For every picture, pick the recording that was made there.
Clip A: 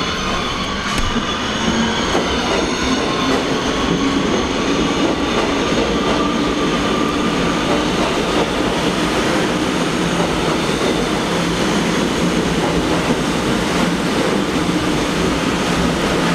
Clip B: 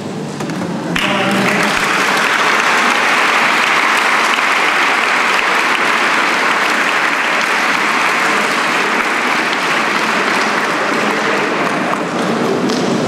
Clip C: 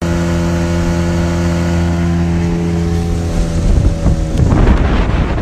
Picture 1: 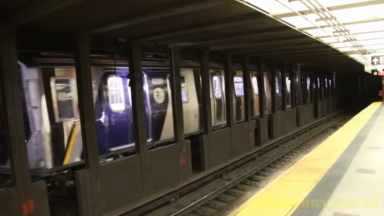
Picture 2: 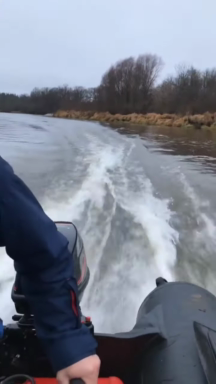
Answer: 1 A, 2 C